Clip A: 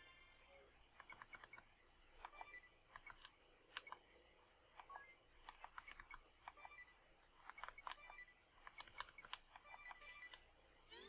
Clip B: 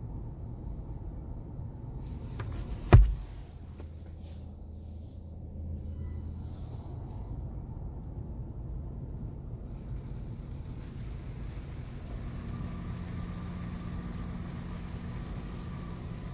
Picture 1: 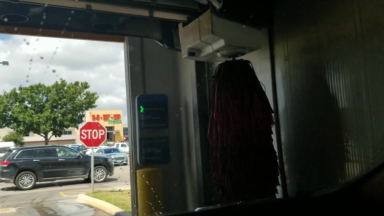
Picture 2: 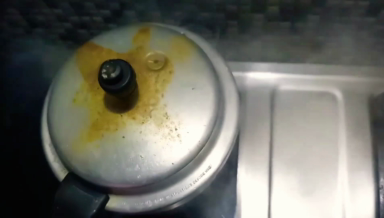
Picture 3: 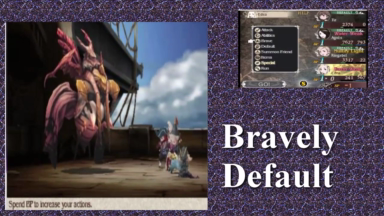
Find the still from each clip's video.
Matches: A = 3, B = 1